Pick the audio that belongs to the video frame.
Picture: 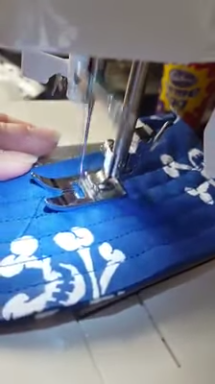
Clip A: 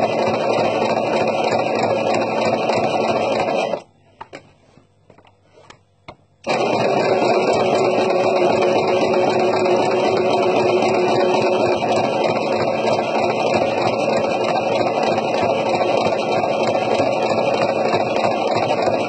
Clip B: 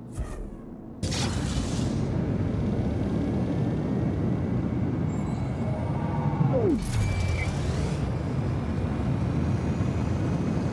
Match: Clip A